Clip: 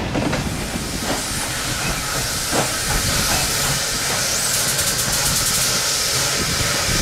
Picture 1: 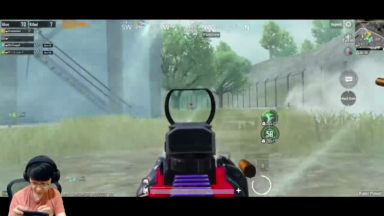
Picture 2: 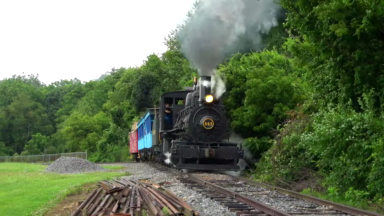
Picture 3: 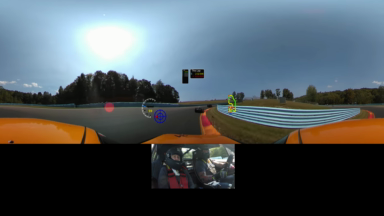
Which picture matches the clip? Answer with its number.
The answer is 2